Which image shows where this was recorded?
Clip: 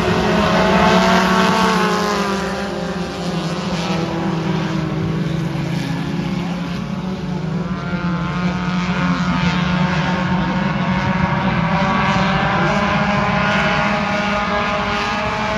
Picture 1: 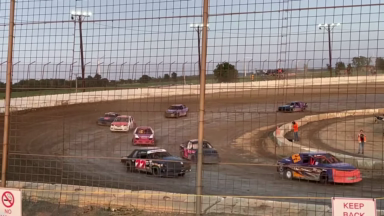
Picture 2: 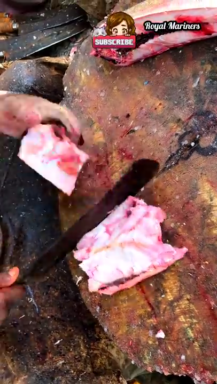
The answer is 1